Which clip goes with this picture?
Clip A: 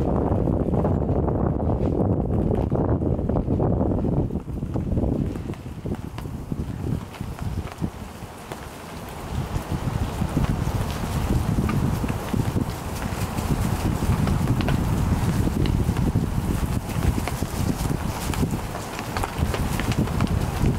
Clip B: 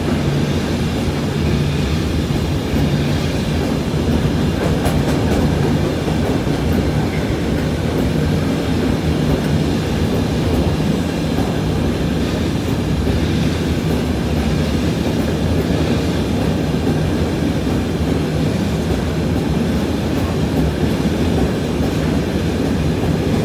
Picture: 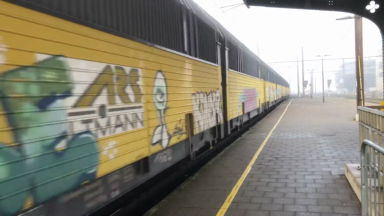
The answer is B